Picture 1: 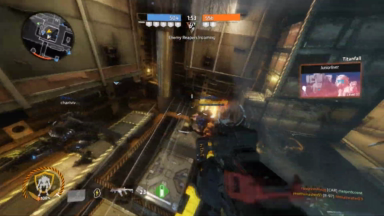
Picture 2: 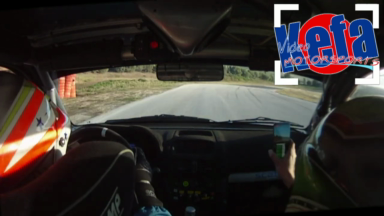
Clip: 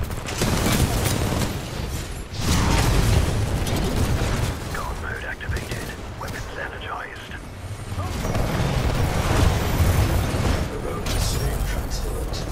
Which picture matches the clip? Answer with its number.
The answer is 1